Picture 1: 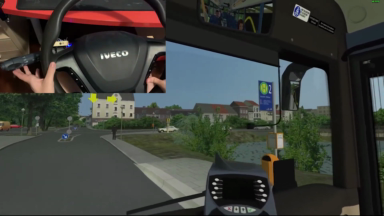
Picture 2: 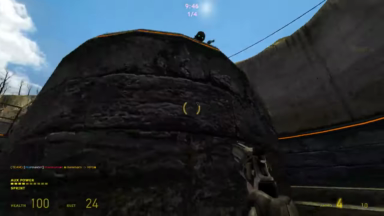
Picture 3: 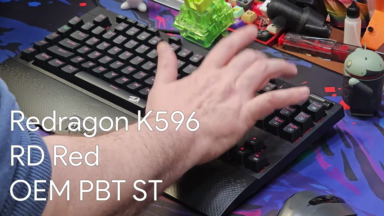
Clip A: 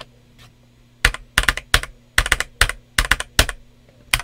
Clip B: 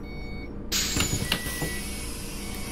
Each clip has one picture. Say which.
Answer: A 3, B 1